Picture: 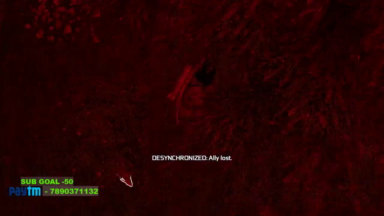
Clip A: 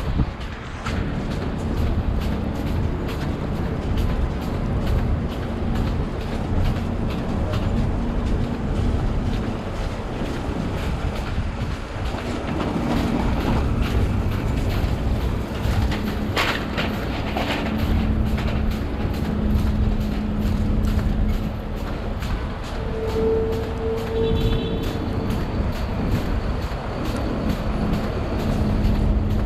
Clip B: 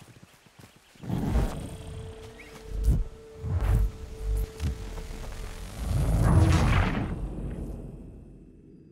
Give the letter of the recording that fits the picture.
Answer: B